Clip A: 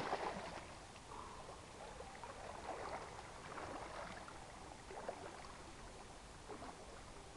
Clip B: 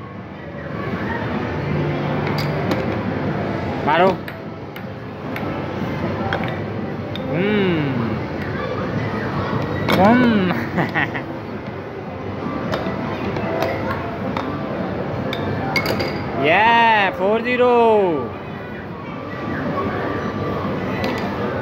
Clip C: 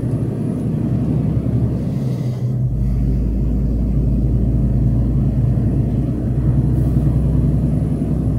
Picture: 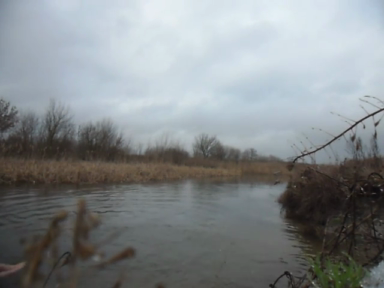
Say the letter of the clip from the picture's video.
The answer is A